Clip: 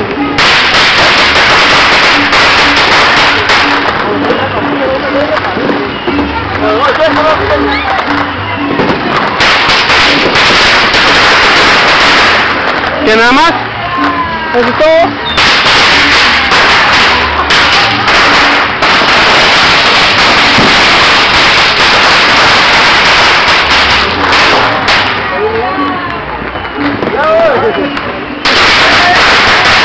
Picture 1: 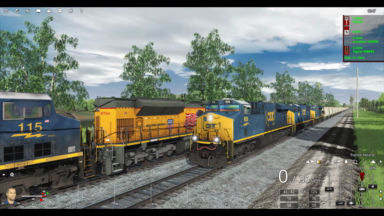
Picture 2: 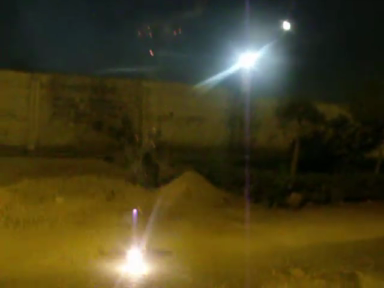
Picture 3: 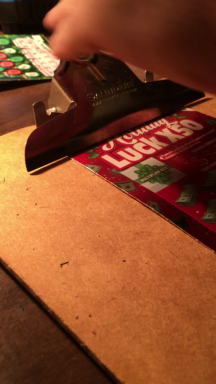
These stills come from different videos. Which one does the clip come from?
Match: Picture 2